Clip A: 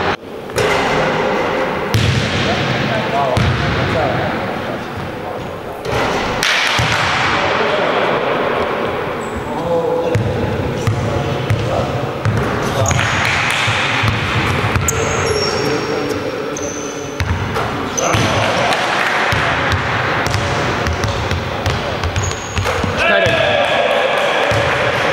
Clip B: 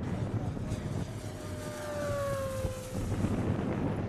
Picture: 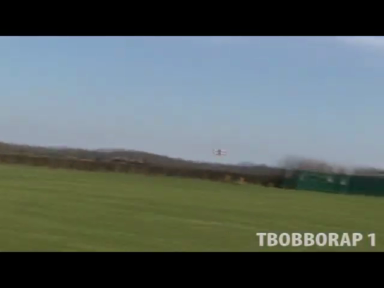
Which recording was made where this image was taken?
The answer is B